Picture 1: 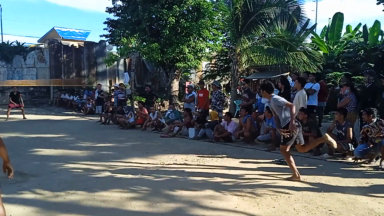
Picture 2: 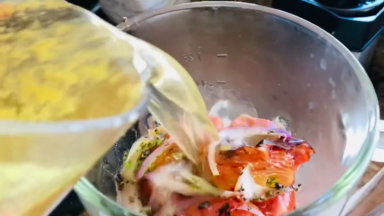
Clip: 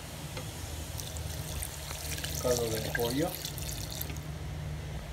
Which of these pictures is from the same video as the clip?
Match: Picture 2